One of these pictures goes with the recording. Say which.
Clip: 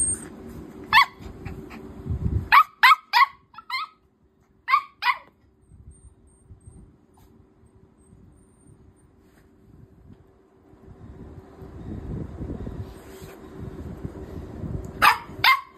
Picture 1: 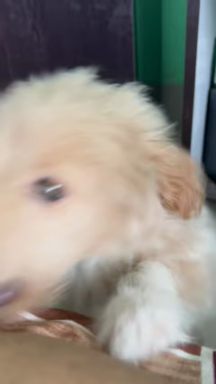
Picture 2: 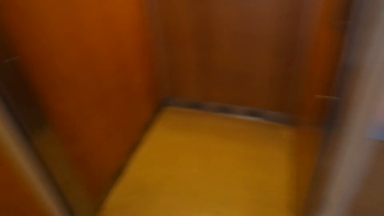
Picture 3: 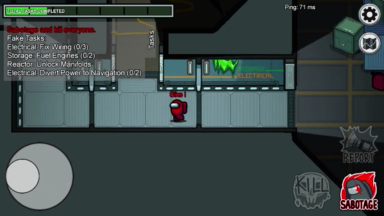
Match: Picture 1